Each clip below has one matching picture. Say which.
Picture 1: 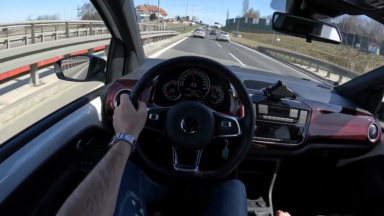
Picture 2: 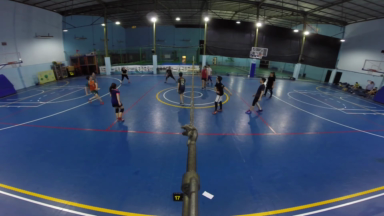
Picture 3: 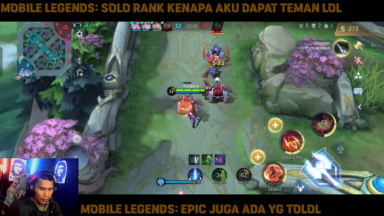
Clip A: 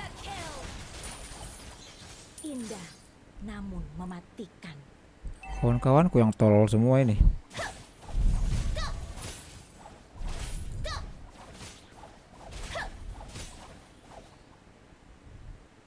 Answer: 3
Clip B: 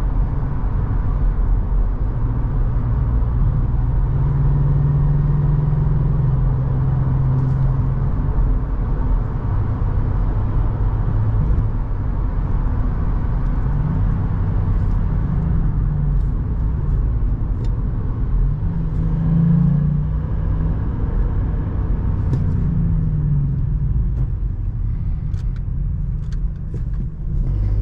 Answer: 1